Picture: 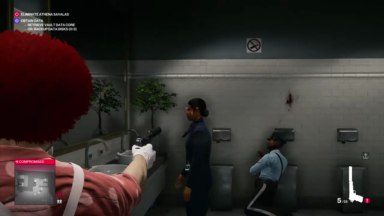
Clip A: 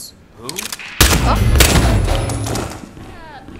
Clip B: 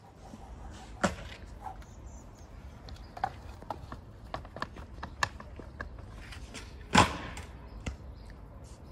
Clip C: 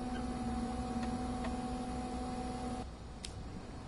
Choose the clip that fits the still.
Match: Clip A